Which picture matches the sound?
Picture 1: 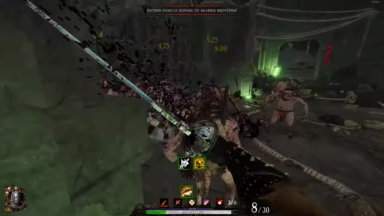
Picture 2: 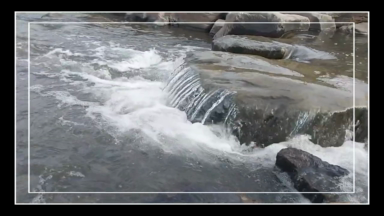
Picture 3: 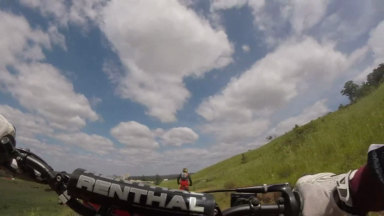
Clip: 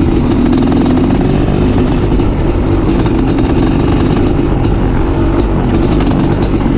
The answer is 3